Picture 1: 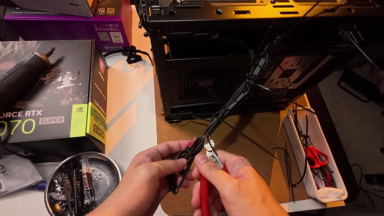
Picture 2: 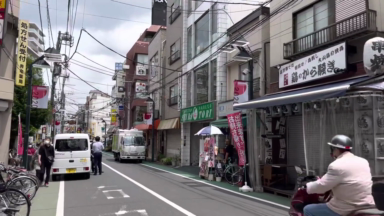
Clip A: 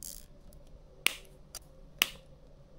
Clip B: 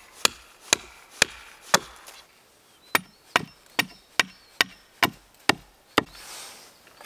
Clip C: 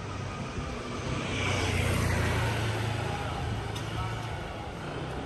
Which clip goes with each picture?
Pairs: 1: A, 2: C